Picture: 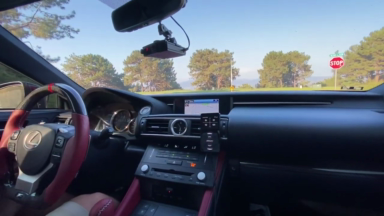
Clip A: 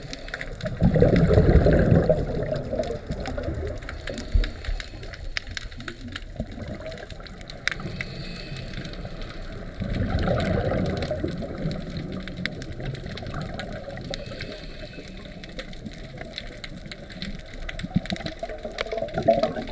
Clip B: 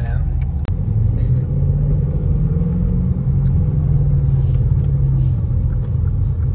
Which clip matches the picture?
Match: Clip B